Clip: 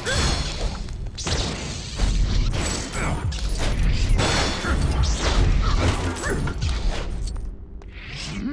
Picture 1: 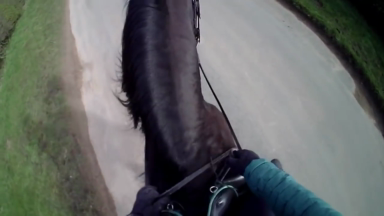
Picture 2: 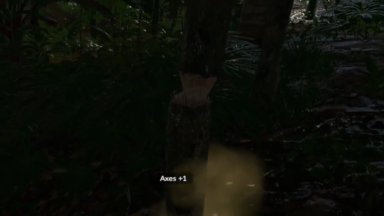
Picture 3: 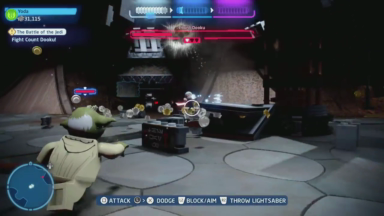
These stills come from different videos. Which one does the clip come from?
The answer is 3